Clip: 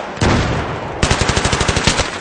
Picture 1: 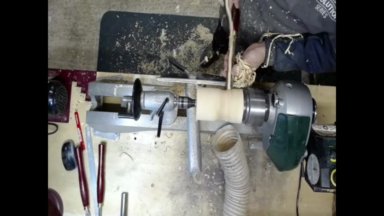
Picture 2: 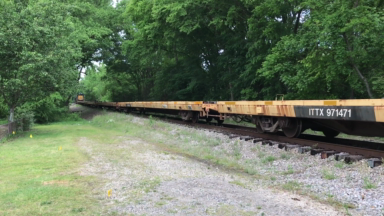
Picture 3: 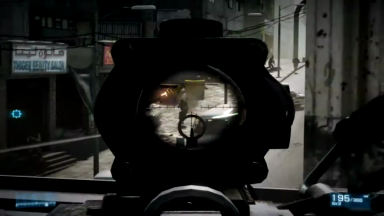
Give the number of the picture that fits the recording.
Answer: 3